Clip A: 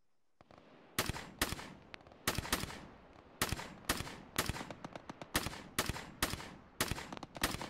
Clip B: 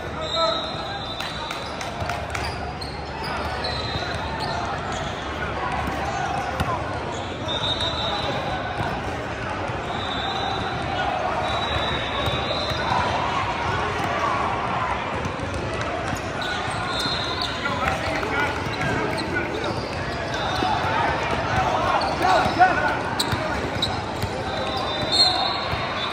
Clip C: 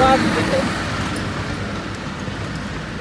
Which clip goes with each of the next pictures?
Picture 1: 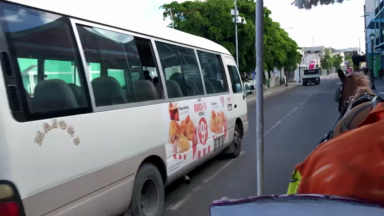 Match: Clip C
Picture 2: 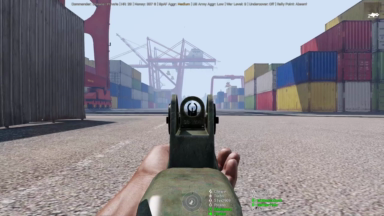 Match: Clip A